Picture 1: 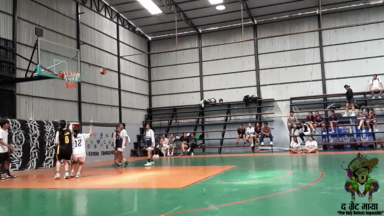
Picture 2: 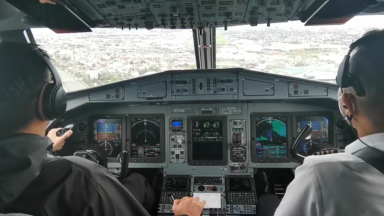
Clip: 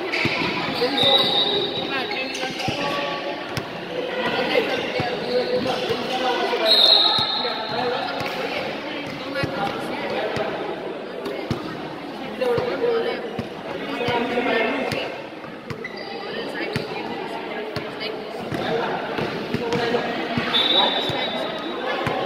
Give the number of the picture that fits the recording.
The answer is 1